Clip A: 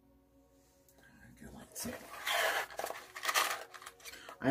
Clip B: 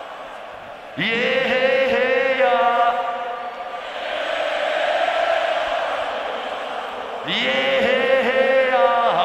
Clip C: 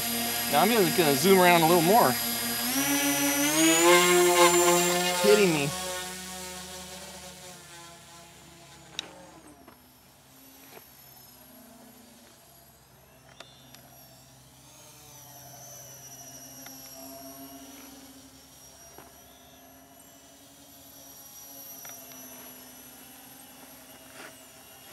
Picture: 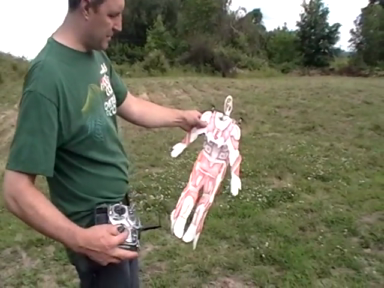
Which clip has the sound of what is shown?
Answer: C